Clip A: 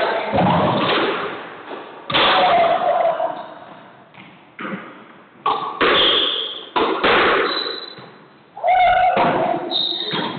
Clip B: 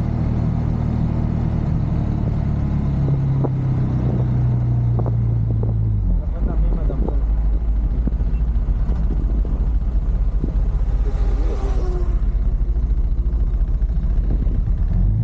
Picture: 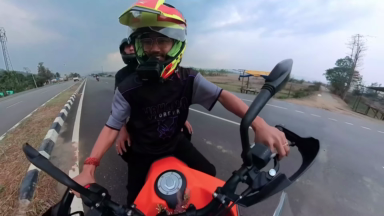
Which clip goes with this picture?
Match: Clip B